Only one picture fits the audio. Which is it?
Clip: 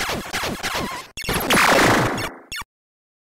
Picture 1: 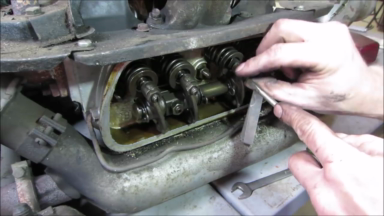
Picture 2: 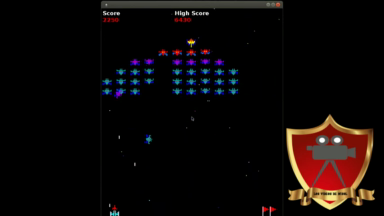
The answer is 2